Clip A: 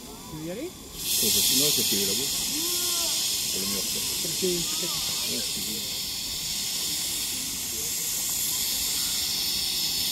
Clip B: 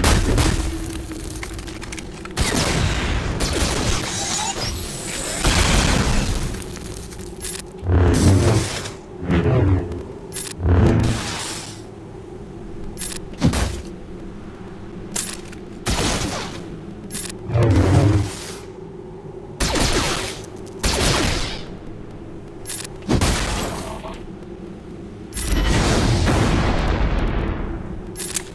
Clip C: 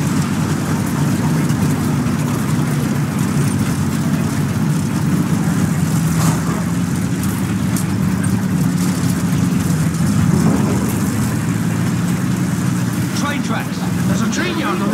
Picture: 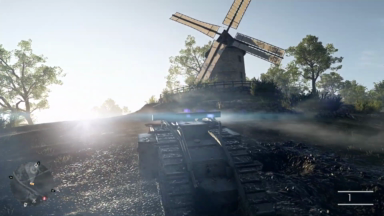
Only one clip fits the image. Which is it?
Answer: C